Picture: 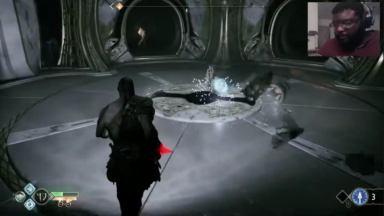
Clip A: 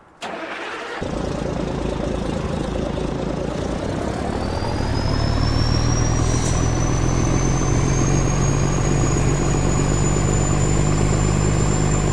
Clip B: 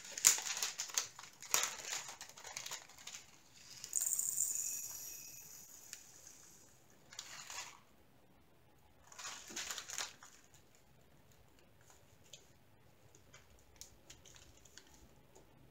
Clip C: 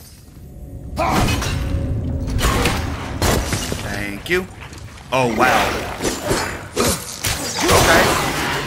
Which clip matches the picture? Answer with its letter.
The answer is C